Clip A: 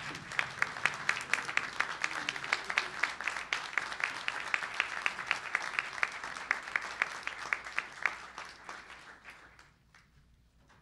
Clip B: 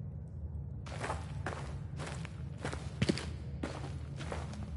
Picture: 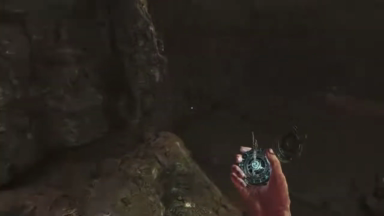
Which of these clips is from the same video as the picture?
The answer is B